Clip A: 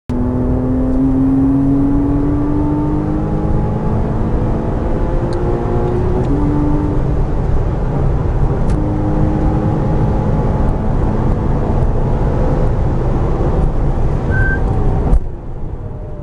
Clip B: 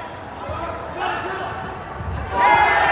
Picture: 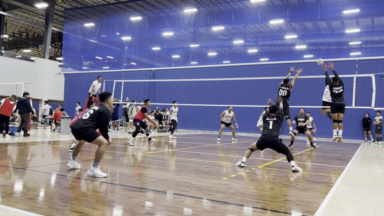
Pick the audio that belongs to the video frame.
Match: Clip B